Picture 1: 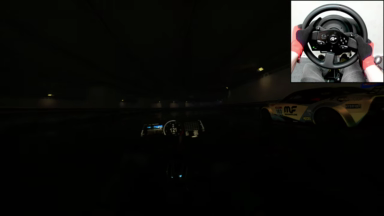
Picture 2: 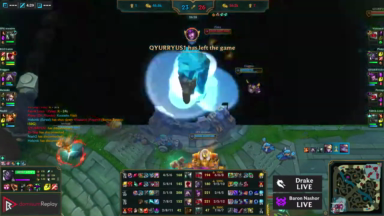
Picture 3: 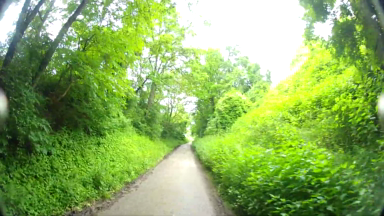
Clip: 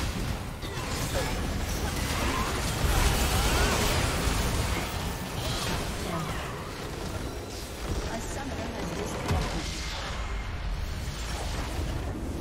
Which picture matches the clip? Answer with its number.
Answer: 2